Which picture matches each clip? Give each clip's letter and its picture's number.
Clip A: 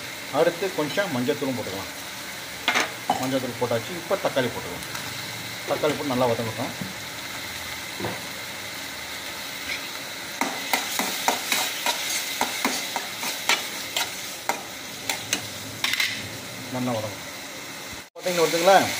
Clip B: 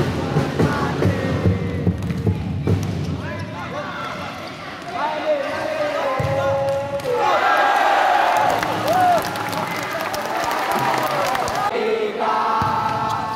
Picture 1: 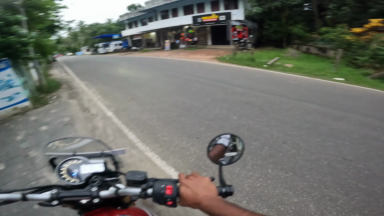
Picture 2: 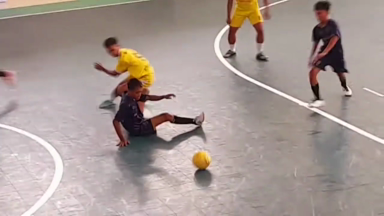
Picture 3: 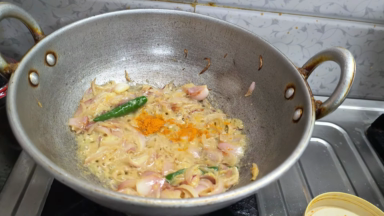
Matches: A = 3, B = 2